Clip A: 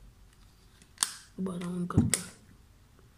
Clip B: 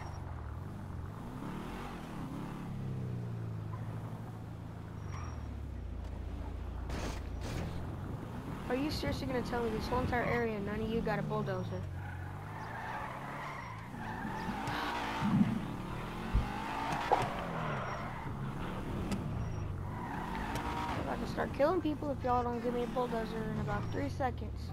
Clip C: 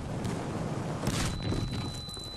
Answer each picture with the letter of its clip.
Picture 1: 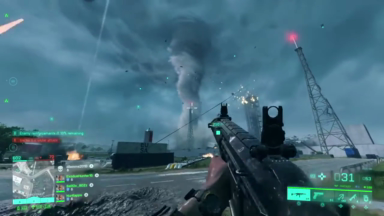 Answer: C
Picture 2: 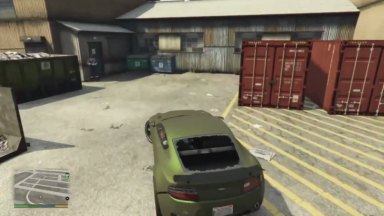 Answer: B